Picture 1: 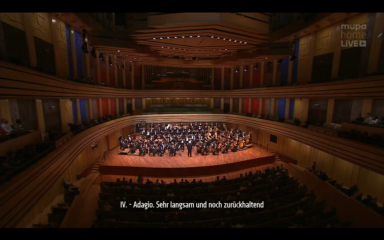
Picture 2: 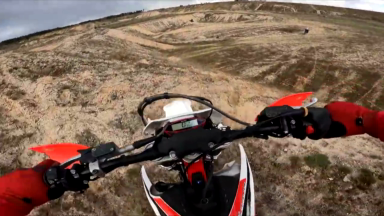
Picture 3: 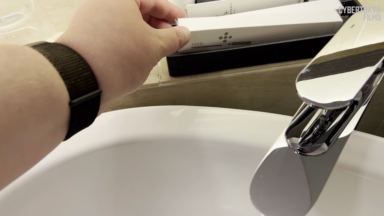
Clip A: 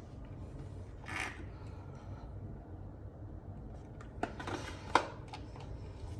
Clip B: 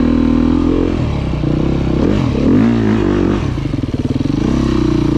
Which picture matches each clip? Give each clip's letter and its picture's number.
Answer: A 3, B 2